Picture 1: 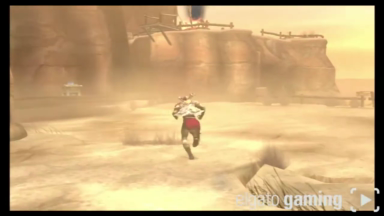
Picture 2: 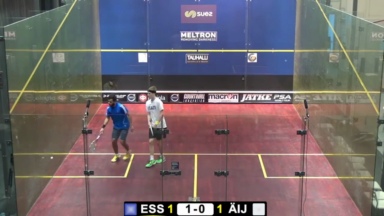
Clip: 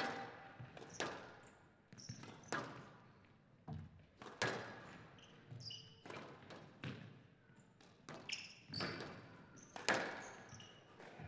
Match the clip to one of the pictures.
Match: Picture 2